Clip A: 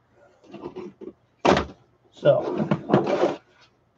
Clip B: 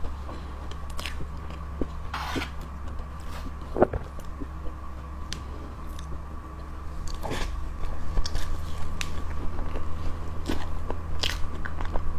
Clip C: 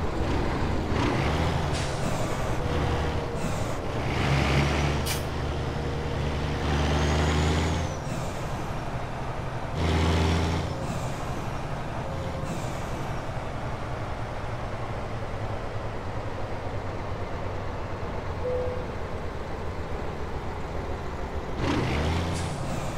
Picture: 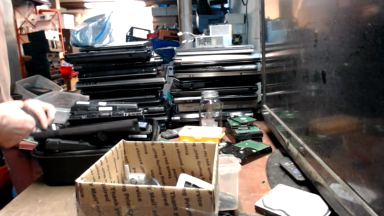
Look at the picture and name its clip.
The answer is A